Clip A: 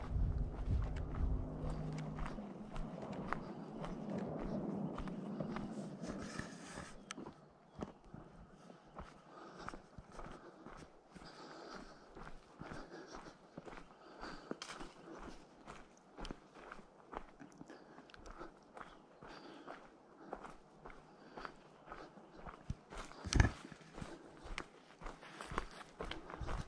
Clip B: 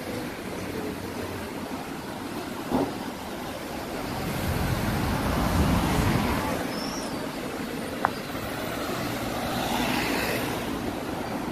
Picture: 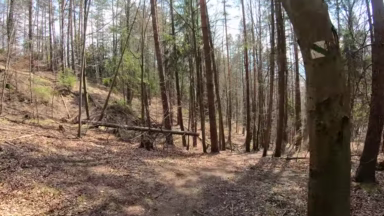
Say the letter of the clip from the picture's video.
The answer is A